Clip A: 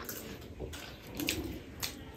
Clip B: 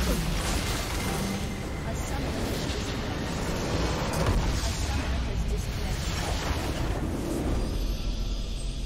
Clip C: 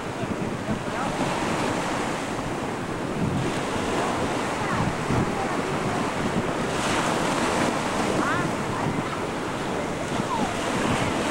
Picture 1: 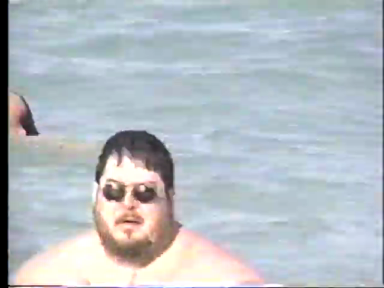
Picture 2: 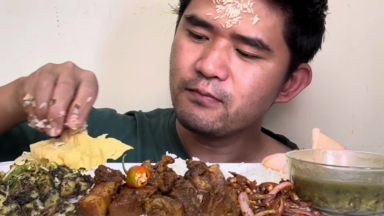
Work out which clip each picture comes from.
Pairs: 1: C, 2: A